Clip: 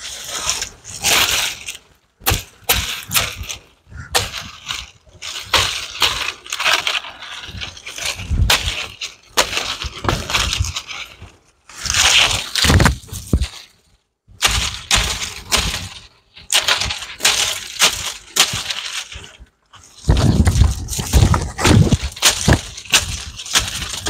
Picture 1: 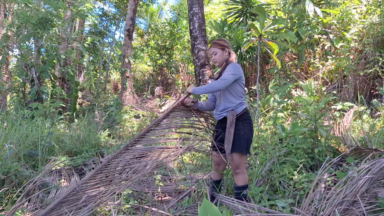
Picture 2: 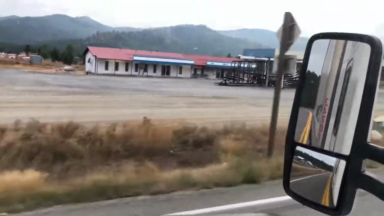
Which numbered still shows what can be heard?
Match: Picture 1